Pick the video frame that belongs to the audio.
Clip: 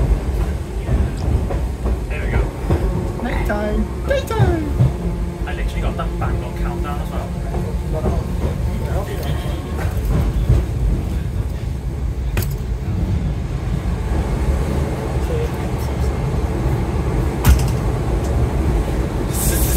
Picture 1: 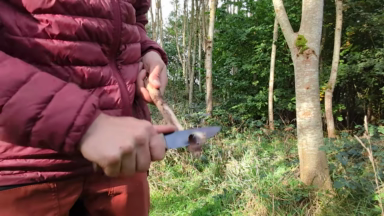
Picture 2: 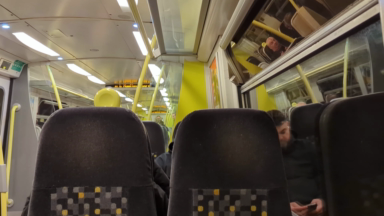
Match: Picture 2